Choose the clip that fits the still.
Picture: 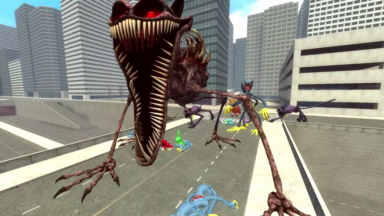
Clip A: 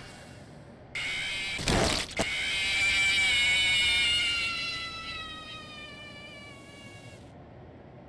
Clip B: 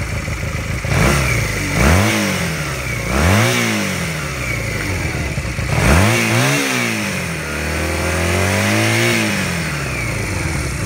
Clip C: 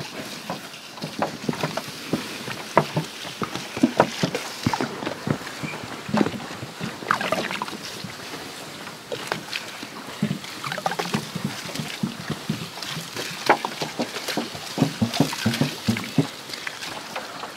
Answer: A